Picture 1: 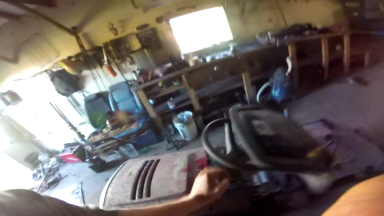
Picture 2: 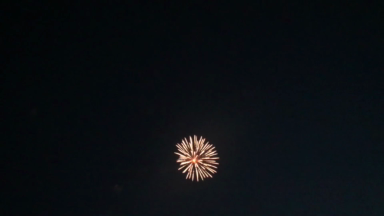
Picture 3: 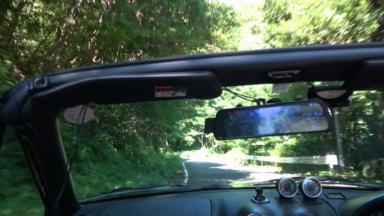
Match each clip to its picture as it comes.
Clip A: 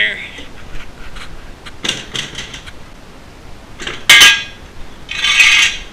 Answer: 1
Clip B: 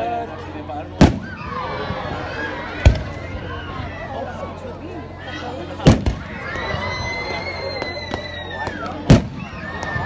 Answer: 2